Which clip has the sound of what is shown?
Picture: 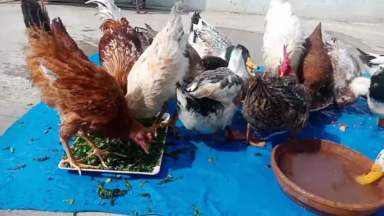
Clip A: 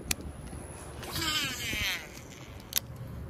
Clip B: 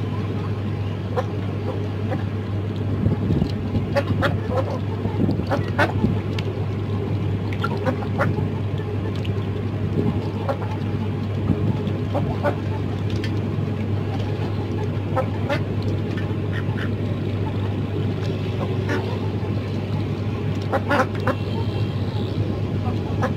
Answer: B